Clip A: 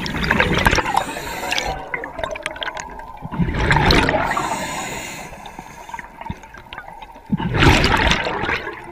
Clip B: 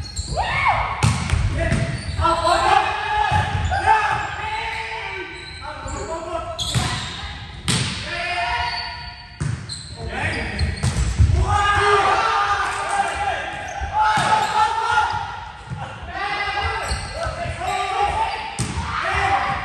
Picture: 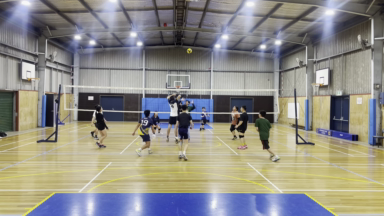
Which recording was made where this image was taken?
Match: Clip B